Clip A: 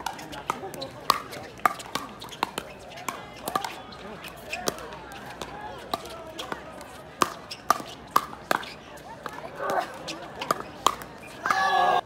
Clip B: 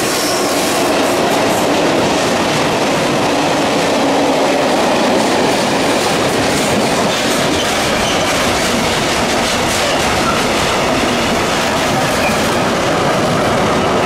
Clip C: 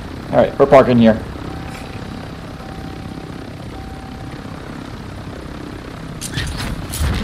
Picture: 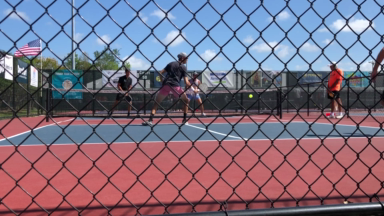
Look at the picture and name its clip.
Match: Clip A